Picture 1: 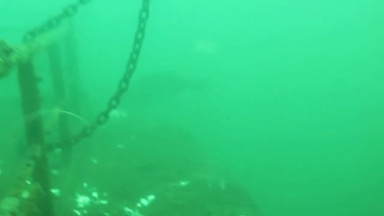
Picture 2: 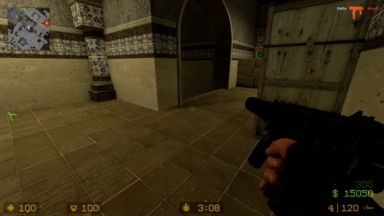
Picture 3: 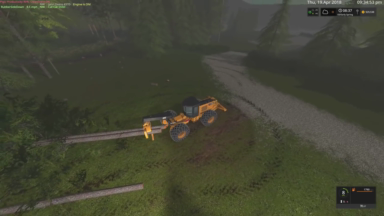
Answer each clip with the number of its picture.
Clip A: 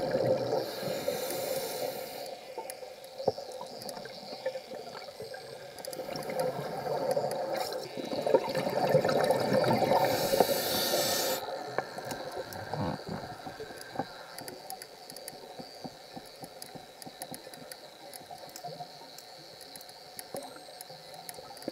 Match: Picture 1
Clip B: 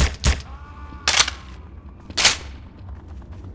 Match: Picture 2